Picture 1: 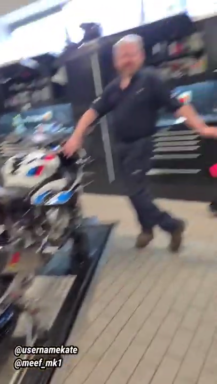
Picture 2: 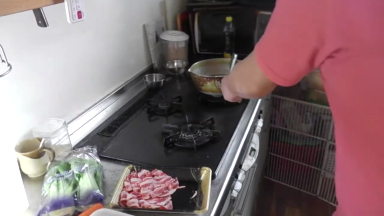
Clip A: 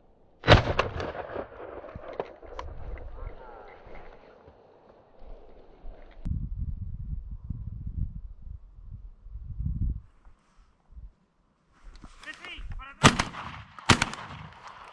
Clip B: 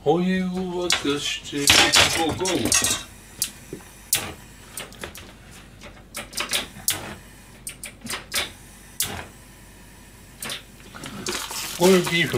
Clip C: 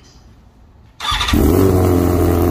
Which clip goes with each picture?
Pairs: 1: C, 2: B